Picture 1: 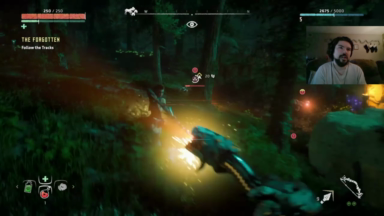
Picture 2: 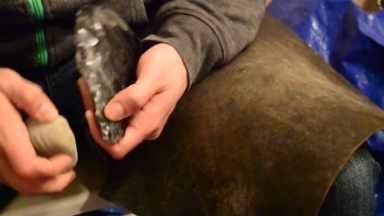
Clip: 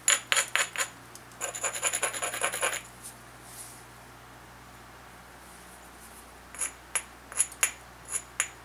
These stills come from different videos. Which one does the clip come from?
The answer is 2